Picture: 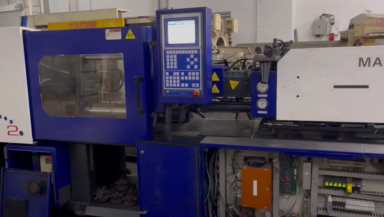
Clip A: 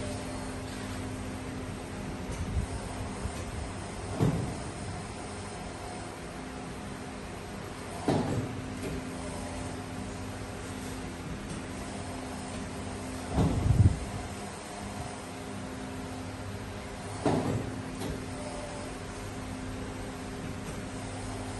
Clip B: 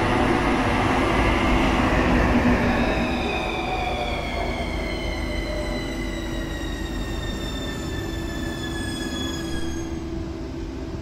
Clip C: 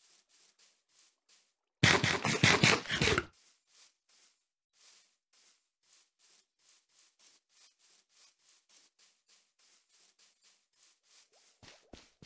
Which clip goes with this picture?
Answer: A